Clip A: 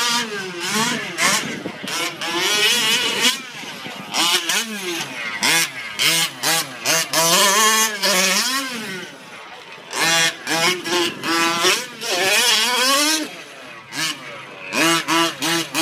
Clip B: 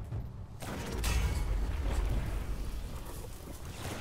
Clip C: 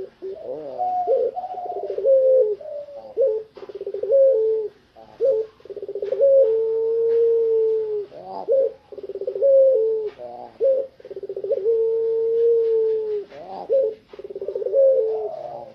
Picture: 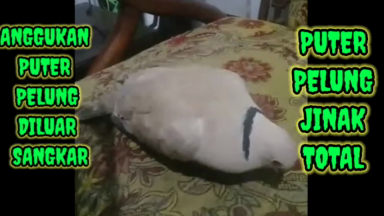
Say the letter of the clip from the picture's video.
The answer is C